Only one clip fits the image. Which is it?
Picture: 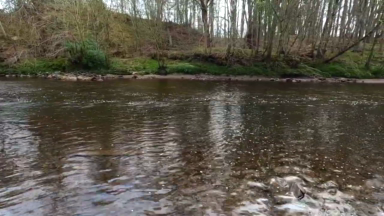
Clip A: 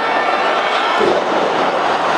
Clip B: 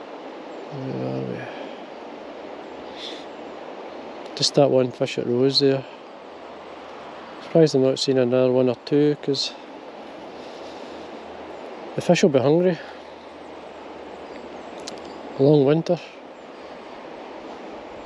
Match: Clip B